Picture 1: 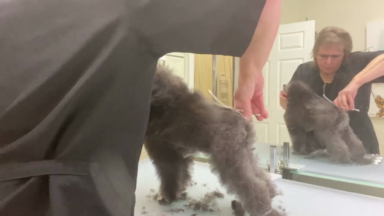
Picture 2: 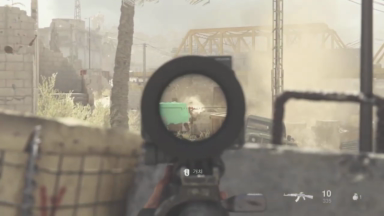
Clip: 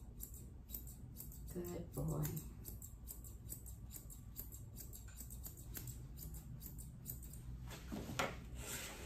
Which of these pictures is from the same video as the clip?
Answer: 1